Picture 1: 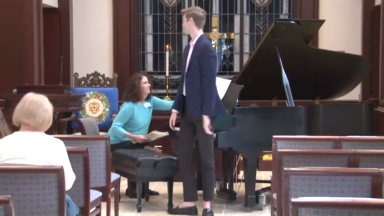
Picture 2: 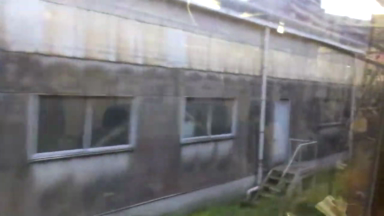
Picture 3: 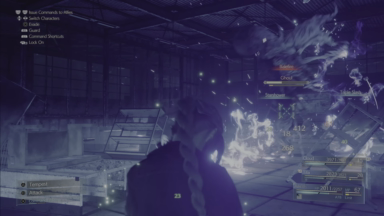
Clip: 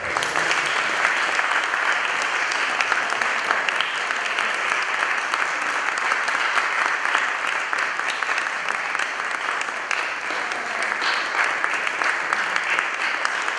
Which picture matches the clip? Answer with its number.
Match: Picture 1